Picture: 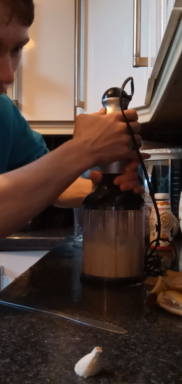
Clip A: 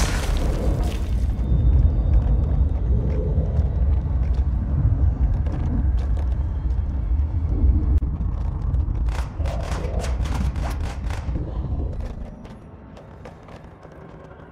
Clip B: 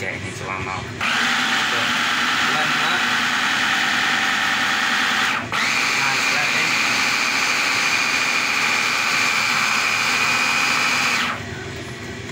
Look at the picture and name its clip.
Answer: B